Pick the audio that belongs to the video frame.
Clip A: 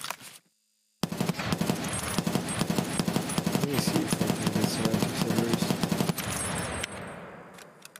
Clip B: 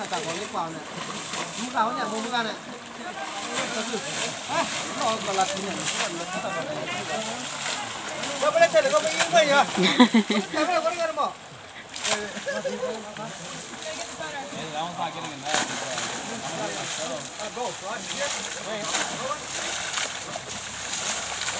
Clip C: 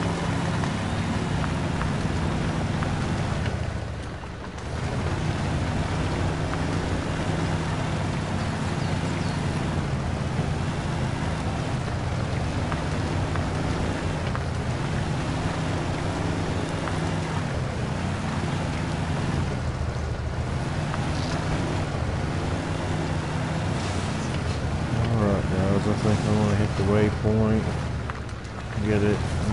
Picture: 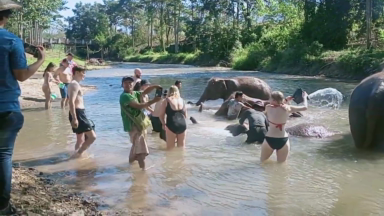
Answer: B